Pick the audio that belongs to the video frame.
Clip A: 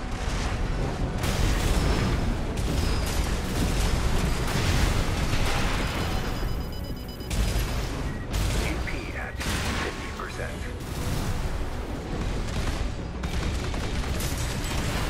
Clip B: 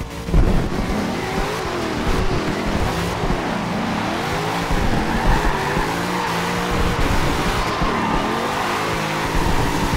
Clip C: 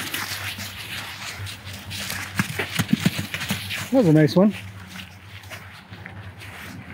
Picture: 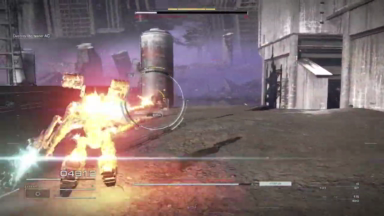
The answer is A